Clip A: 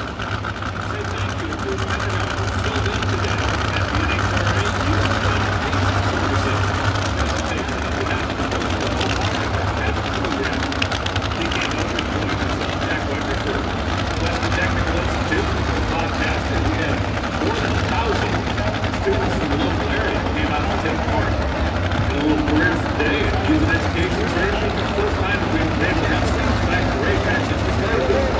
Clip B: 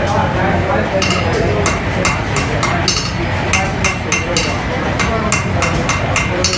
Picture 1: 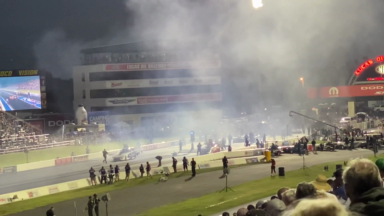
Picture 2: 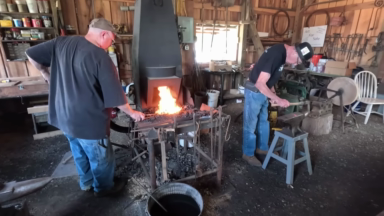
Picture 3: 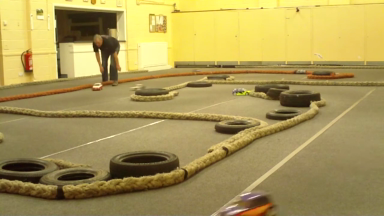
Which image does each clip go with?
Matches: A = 1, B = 2